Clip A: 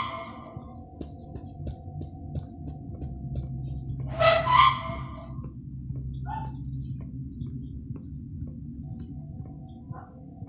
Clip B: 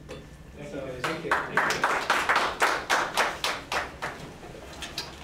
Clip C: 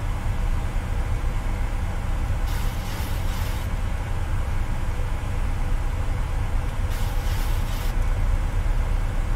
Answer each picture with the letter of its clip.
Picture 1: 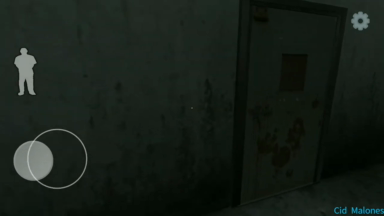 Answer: A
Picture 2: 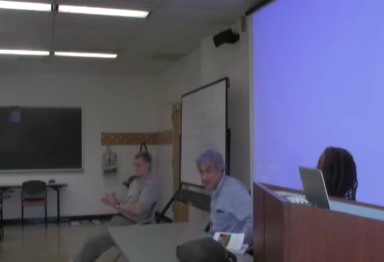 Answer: B